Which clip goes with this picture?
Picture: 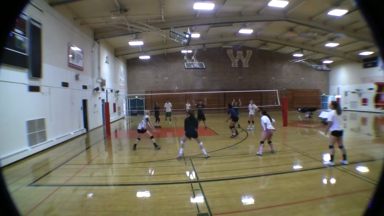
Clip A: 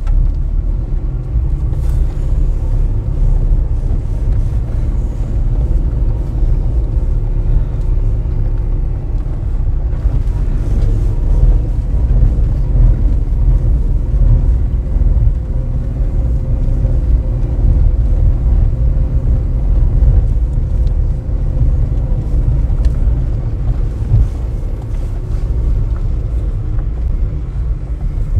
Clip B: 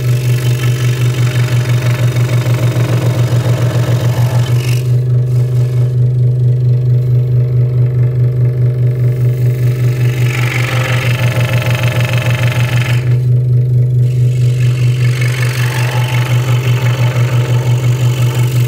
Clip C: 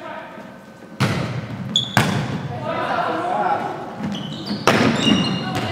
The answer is C